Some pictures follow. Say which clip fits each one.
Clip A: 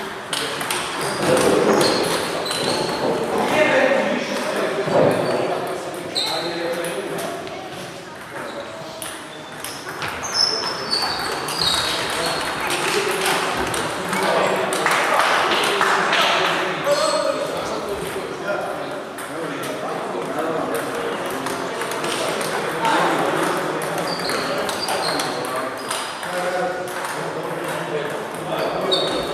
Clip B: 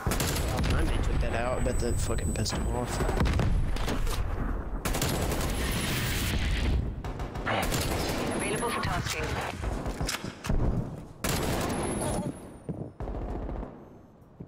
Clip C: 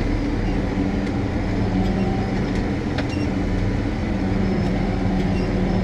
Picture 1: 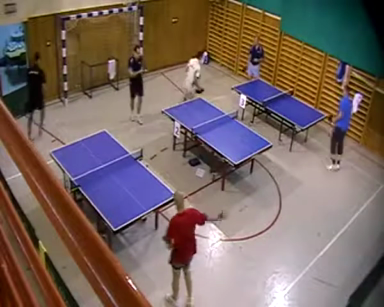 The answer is A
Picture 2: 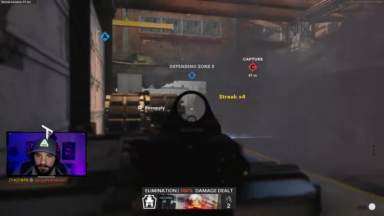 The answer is B